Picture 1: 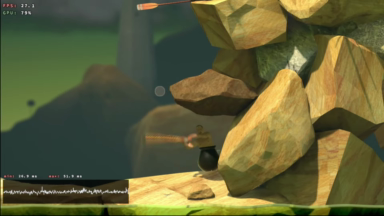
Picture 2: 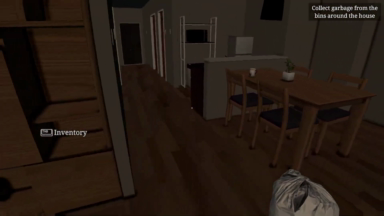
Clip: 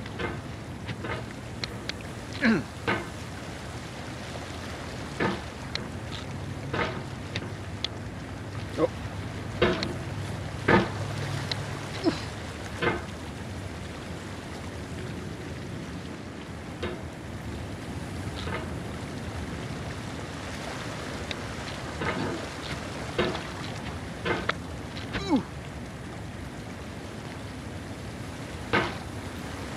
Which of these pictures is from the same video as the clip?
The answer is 1